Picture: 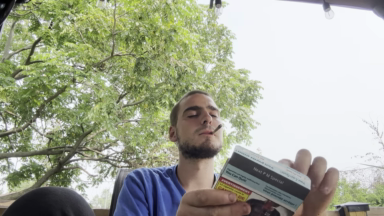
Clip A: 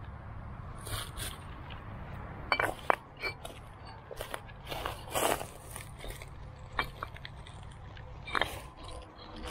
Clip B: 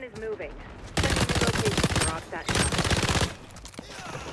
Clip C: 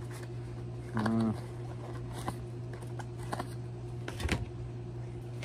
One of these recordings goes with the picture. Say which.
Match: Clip C